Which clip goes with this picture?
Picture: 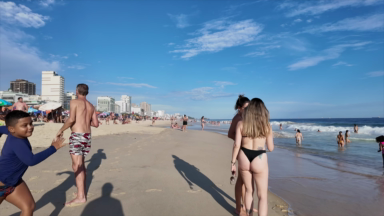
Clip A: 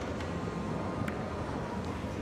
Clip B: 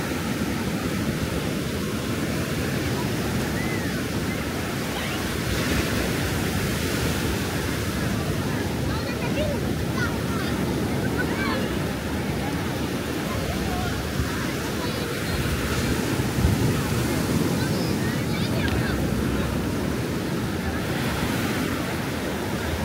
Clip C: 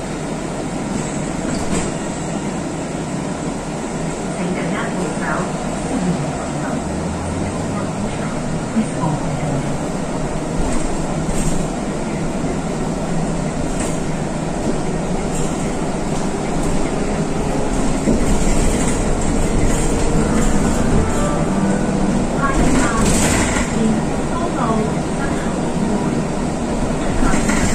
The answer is B